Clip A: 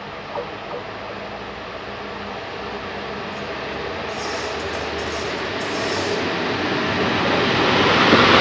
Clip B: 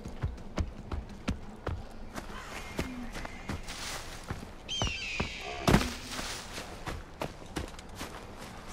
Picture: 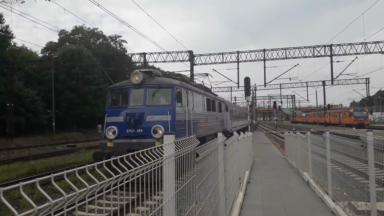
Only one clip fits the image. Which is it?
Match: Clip A